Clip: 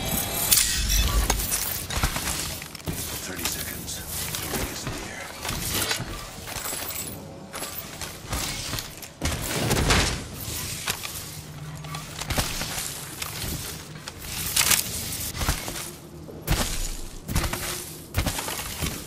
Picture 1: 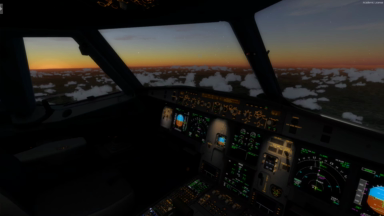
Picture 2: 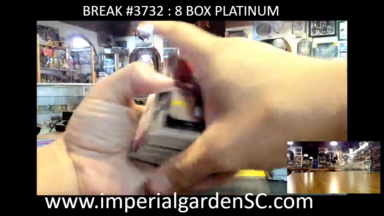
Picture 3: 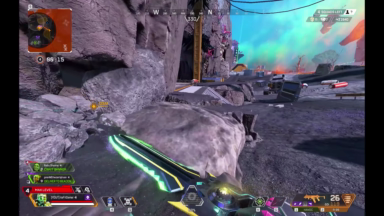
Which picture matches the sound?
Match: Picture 3